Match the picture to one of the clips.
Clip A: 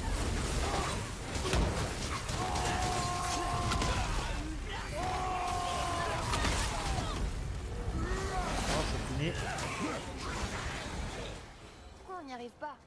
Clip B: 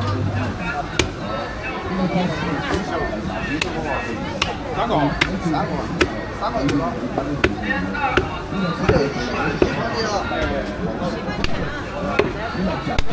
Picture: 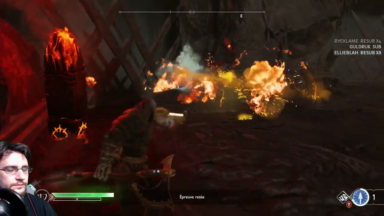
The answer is A